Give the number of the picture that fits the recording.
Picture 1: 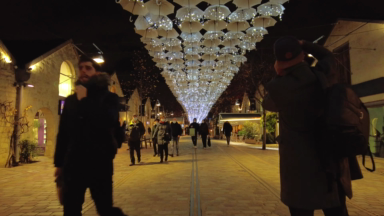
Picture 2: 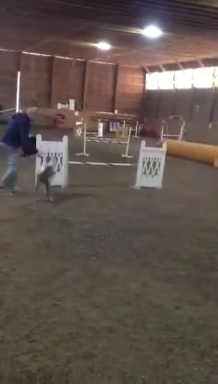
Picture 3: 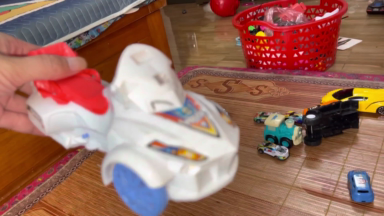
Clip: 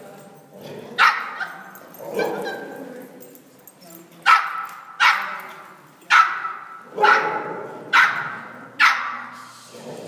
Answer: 2